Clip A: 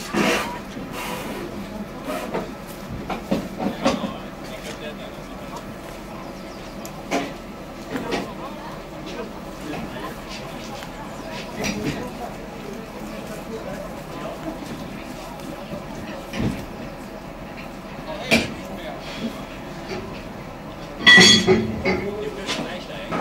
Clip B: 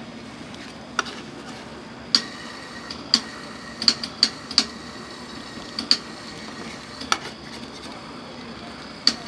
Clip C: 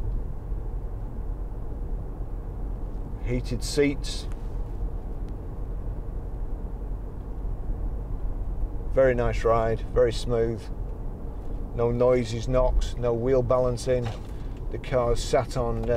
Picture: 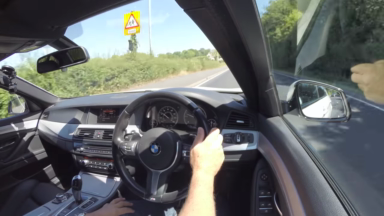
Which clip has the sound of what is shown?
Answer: C